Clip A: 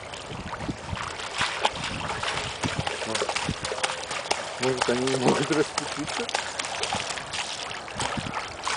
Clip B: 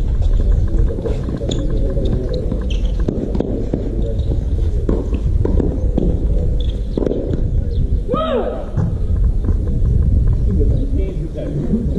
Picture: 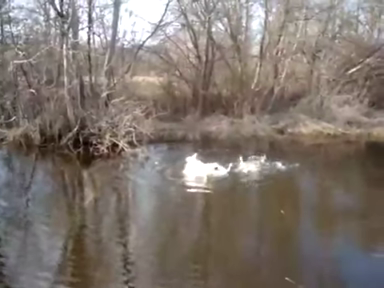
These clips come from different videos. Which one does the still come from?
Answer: A